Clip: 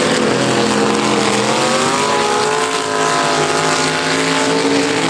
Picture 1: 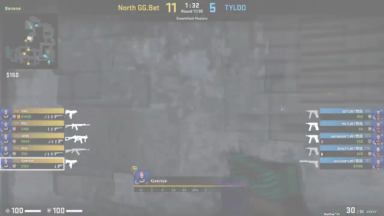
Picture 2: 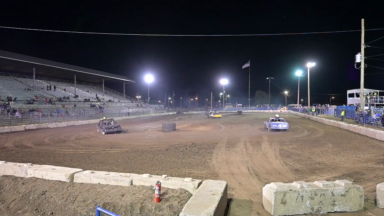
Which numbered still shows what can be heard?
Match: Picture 2